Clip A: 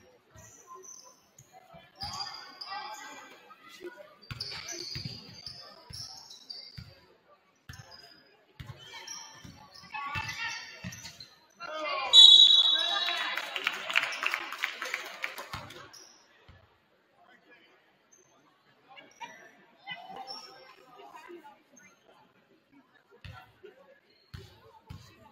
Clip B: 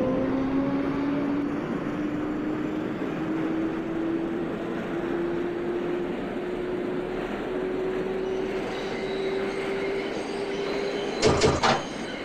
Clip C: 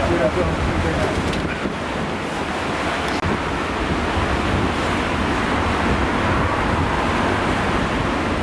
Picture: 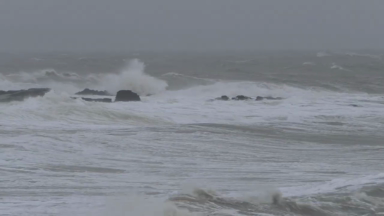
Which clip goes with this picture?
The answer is C